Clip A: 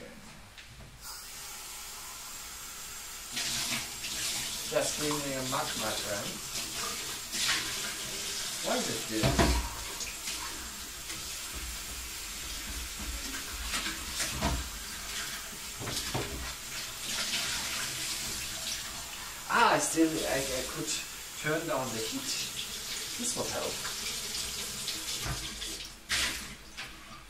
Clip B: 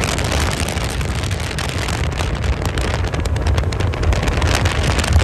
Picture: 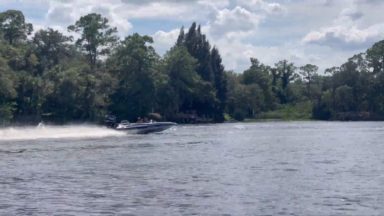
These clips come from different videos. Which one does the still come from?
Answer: B